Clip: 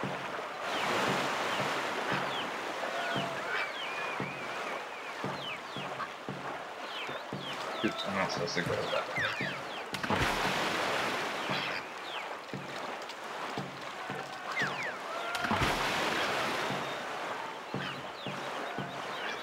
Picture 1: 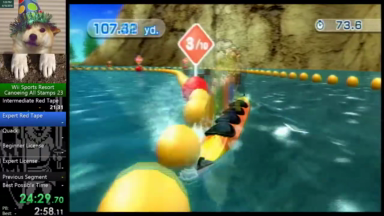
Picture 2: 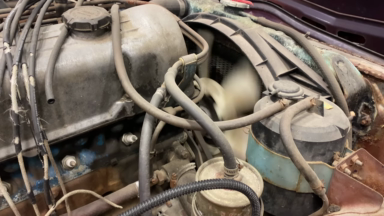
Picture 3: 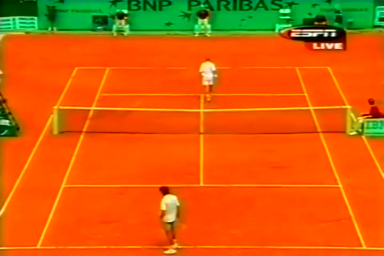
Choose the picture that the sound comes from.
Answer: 1